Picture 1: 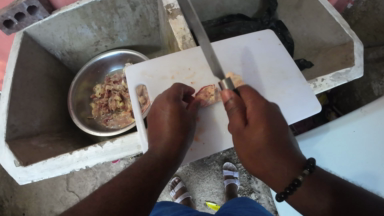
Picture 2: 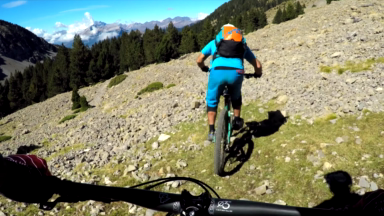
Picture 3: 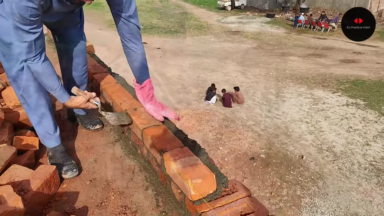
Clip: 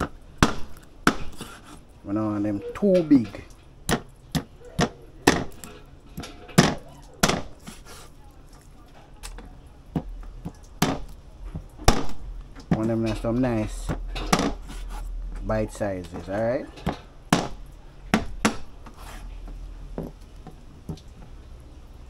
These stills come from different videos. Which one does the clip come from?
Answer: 1